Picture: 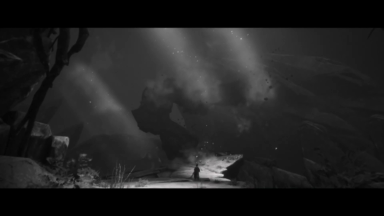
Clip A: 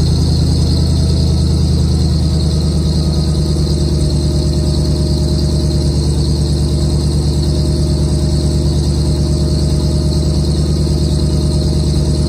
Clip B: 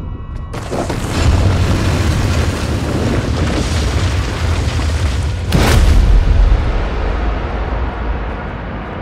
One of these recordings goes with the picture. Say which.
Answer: B